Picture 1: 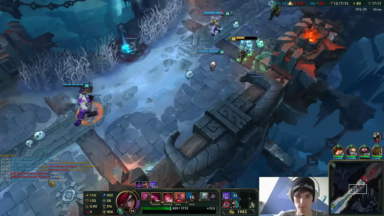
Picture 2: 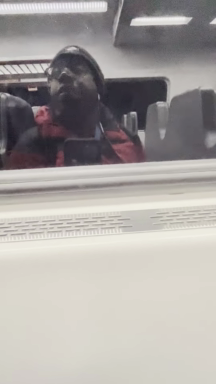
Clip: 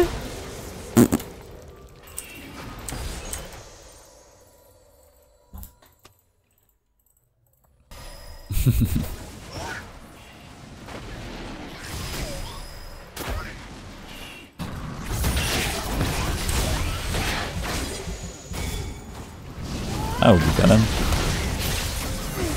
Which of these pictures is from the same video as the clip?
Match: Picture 1